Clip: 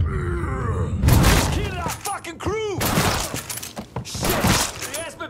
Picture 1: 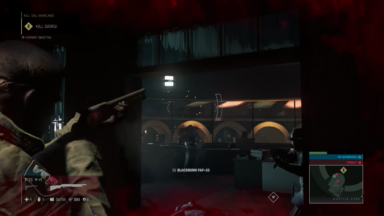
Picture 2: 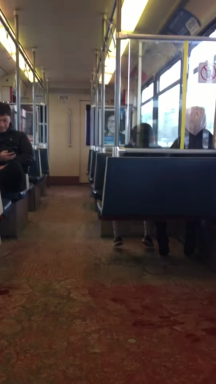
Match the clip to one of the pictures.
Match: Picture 1